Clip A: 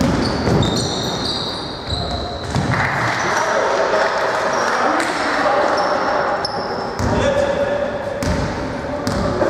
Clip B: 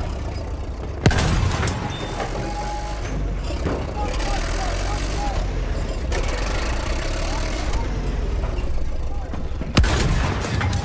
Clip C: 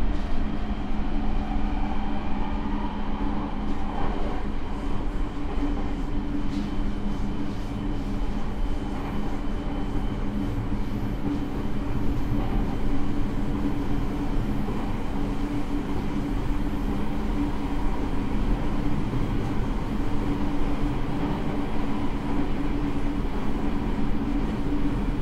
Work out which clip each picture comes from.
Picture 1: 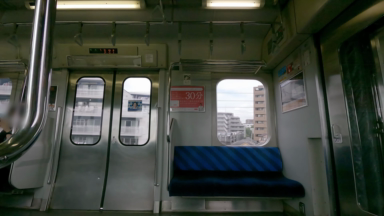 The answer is C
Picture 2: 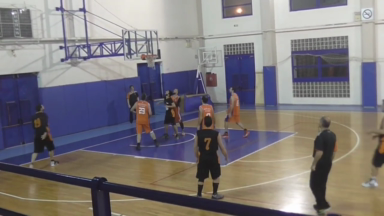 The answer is A